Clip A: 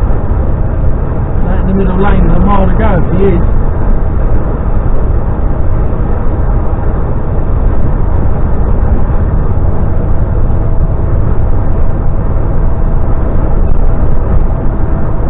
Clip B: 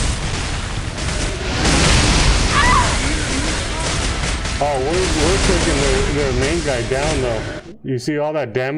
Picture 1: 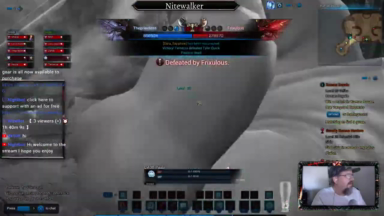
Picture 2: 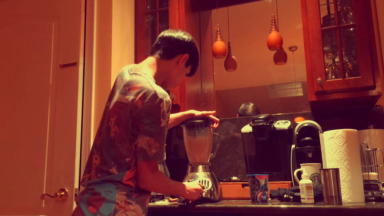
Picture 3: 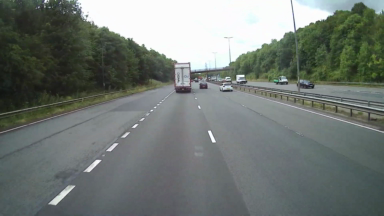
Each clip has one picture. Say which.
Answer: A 3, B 1